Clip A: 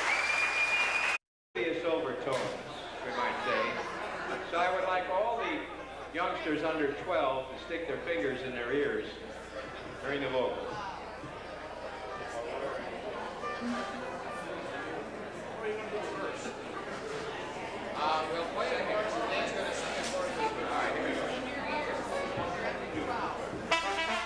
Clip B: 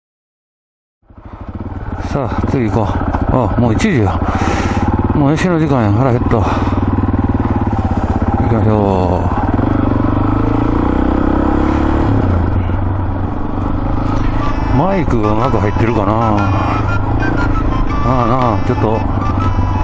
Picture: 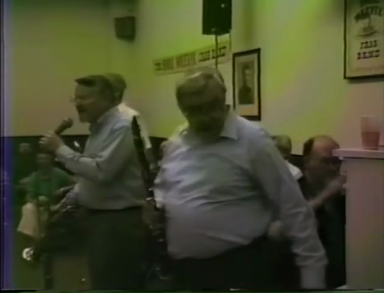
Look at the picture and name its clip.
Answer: A